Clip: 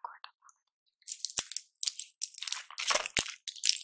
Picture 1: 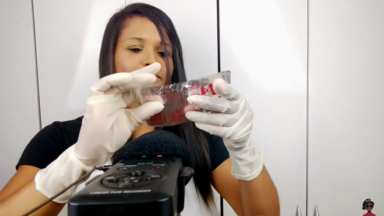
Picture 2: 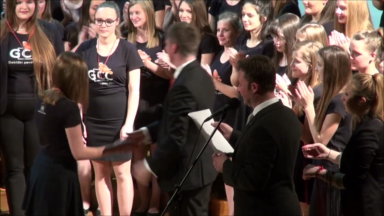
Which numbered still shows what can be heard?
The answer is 1